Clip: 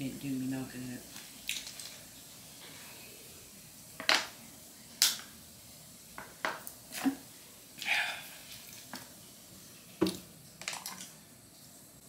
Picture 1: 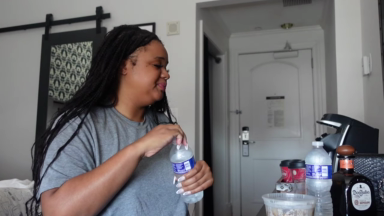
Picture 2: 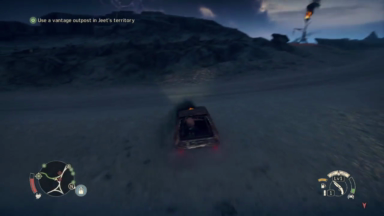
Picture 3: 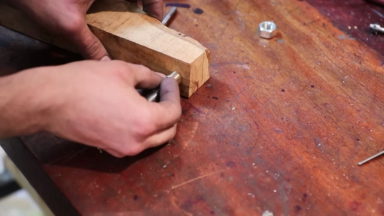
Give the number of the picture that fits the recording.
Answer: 1